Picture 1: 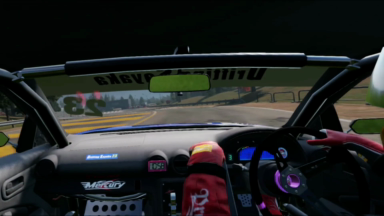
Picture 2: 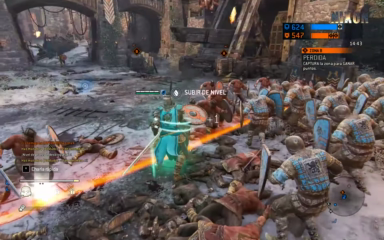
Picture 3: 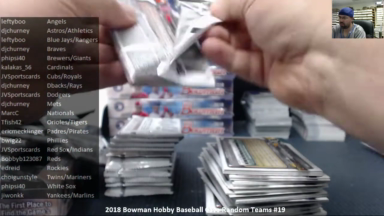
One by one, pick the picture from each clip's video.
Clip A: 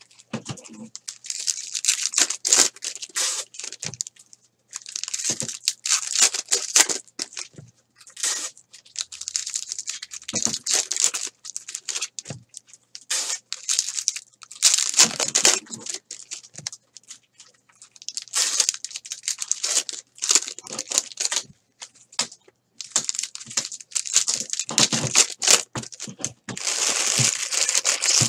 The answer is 3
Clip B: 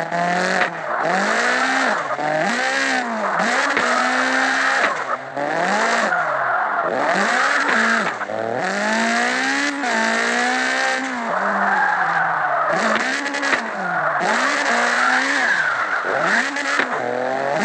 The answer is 1